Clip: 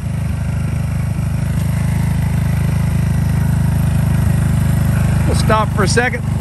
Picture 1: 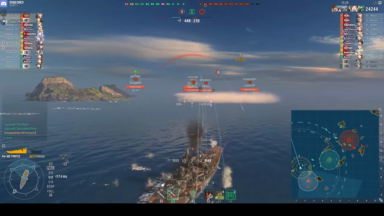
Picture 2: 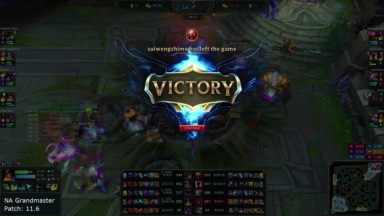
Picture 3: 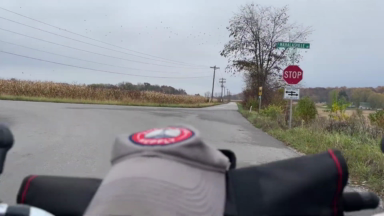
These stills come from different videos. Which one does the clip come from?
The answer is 3